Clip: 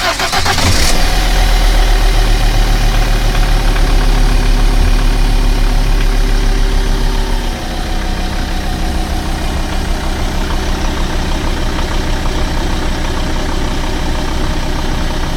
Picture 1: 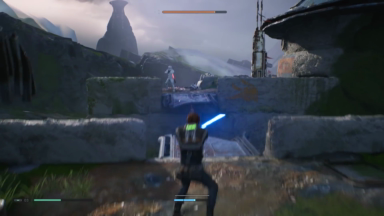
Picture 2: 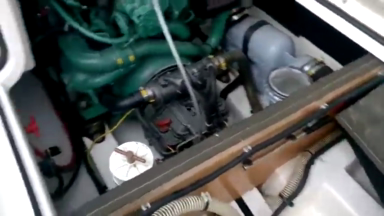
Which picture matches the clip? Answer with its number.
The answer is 2